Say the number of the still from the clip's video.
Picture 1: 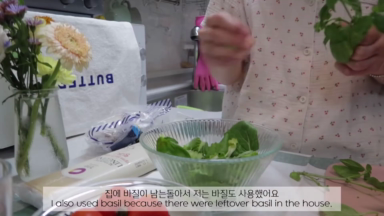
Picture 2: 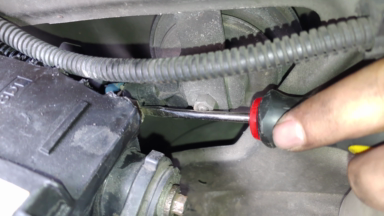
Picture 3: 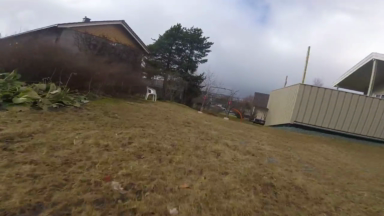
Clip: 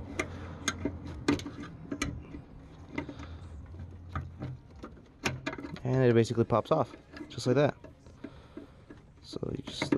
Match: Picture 2